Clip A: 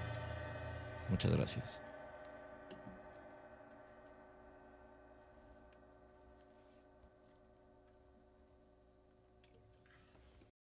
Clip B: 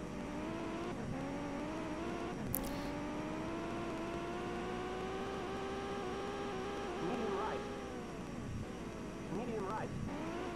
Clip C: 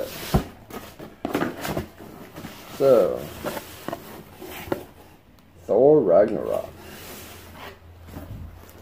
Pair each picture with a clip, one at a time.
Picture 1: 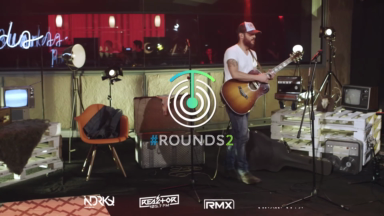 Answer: A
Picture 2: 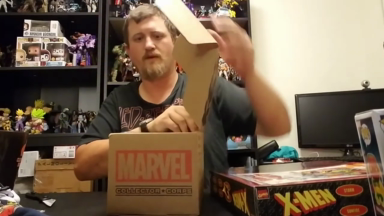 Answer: C